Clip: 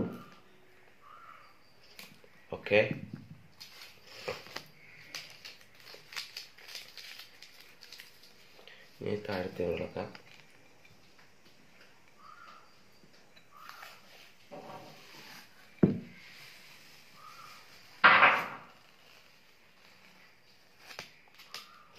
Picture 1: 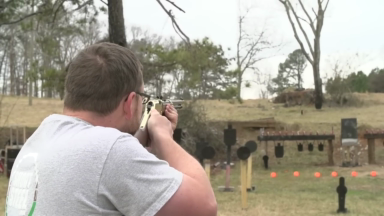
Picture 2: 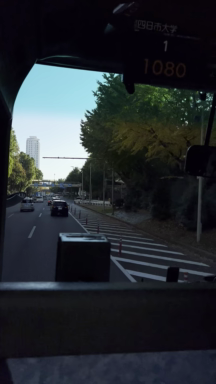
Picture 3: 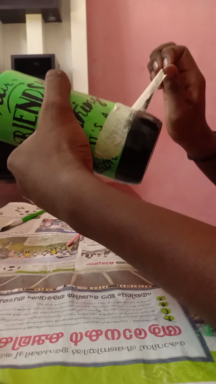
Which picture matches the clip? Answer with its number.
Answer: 3